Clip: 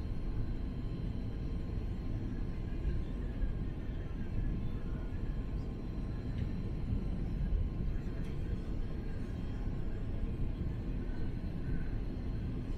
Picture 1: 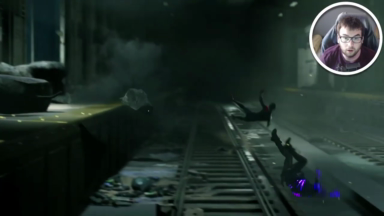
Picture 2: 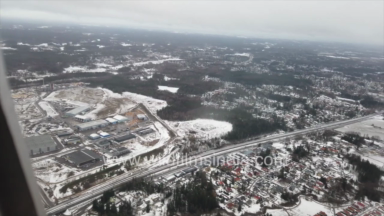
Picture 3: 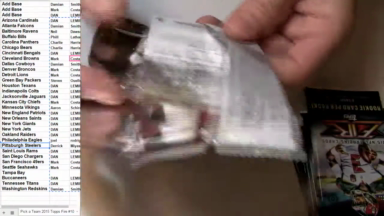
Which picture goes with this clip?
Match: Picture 2